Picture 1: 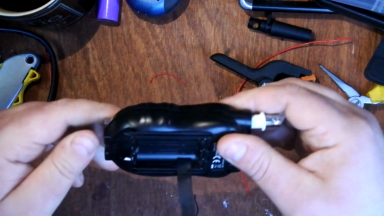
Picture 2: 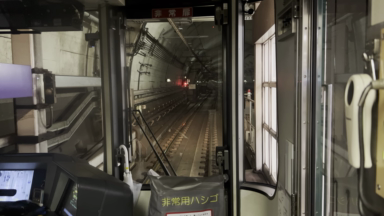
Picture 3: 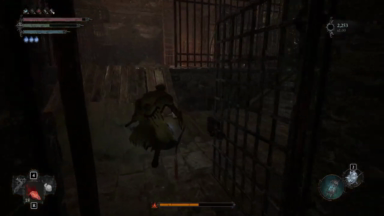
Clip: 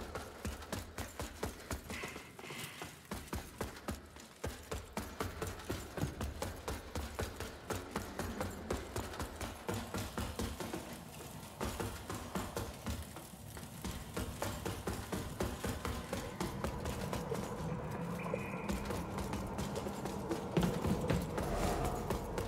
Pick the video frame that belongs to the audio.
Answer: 3